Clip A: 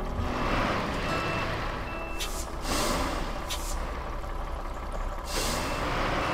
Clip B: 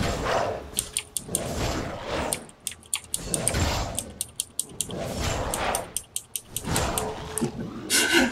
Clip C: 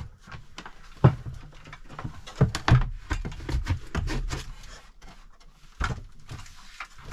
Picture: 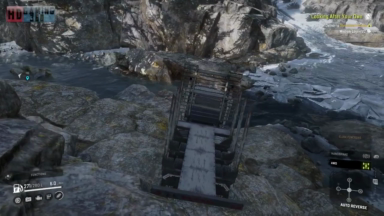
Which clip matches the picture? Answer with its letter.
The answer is A